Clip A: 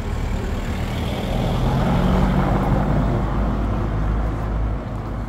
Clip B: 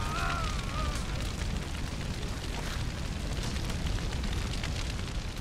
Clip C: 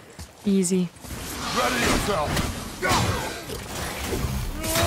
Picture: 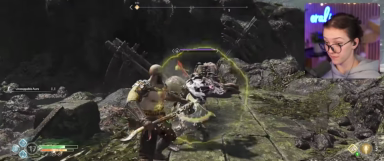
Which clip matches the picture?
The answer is C